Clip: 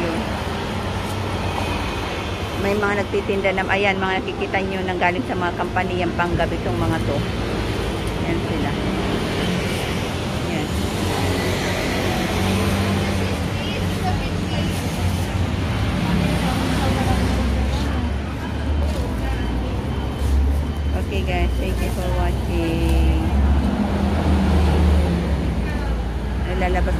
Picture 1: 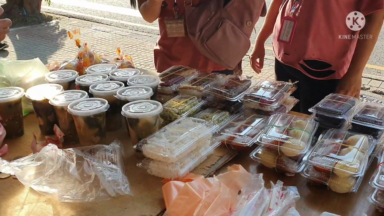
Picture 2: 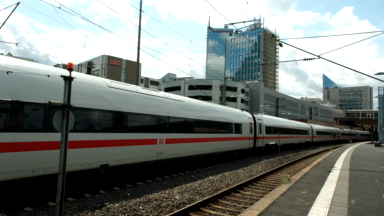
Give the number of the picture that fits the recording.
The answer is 1